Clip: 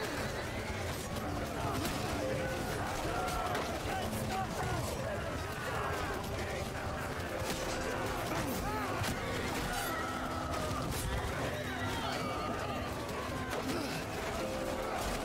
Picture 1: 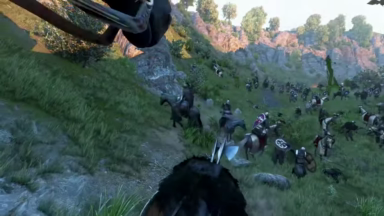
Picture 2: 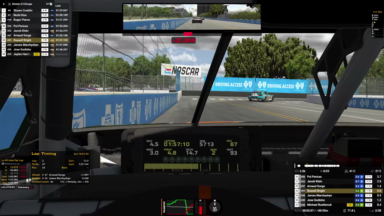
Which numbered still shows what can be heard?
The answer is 1